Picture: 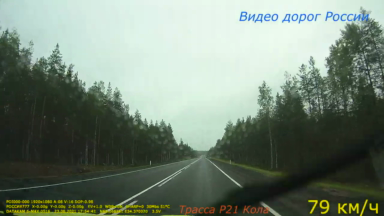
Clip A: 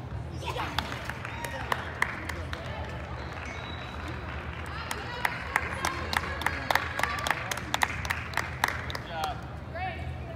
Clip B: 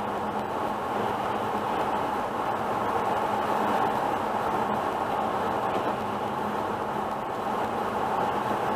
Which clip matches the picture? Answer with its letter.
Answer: B